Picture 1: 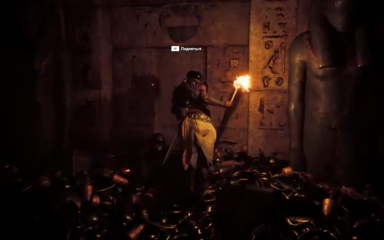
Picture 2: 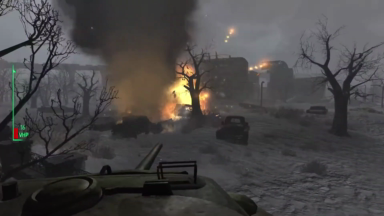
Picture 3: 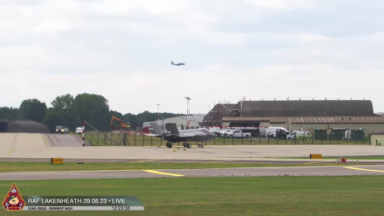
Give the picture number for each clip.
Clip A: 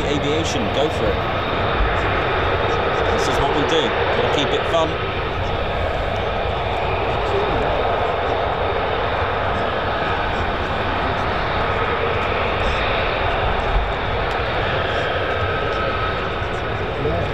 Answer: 3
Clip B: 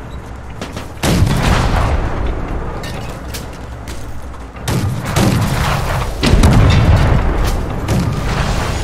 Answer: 2